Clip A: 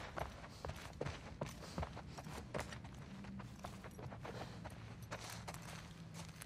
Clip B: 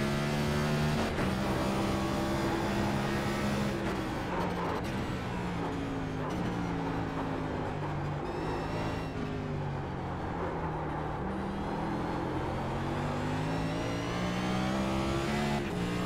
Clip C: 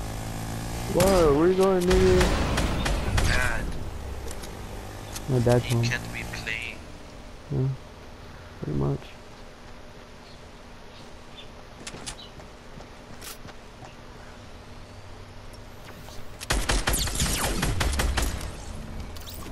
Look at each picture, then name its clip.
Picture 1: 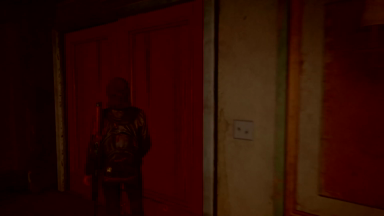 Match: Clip A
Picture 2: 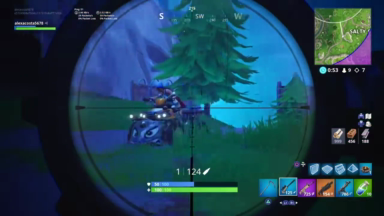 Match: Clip C